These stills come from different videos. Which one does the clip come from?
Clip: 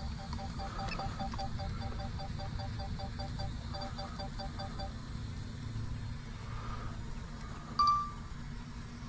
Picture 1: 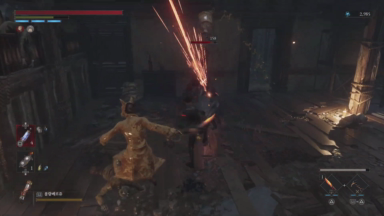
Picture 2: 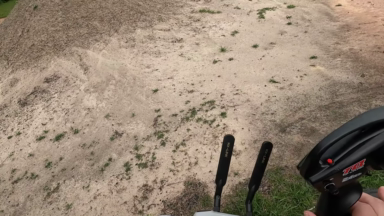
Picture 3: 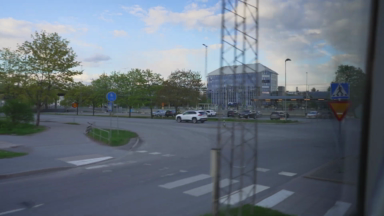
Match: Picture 2